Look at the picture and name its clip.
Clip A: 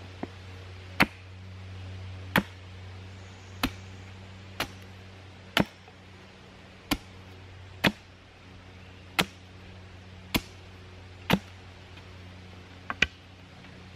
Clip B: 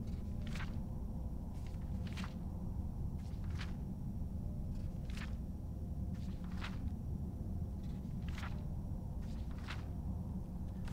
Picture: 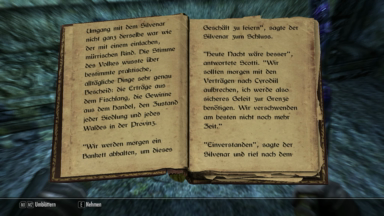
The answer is B